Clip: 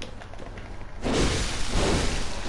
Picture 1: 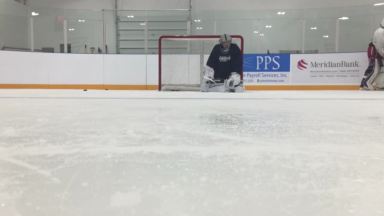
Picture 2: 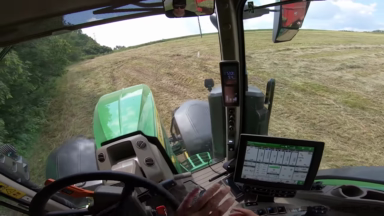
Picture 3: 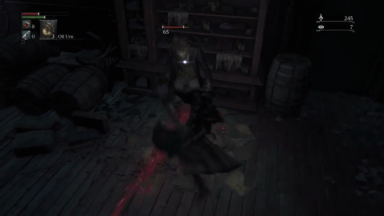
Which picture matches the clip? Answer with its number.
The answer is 3